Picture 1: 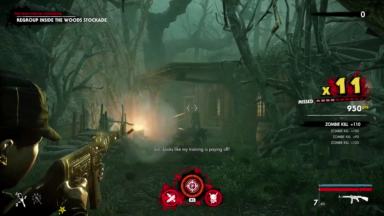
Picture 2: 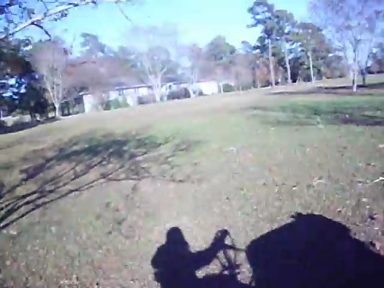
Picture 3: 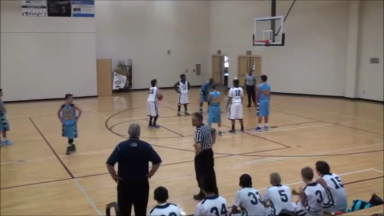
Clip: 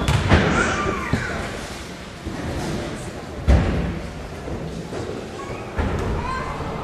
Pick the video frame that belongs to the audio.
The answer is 3